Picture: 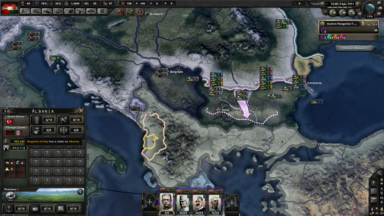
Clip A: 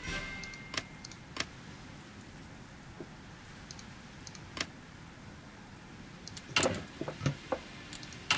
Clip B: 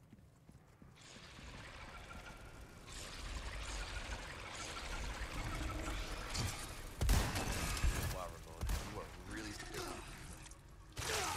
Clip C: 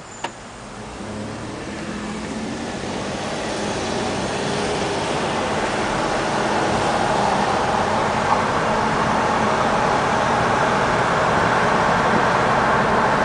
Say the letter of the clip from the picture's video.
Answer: A